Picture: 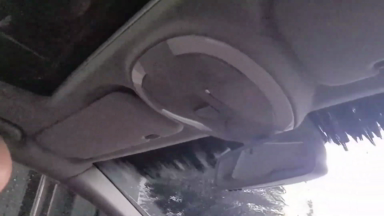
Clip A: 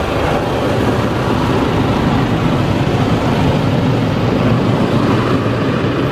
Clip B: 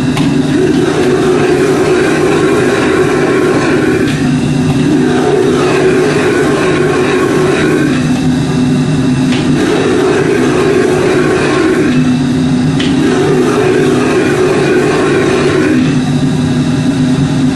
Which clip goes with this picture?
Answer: A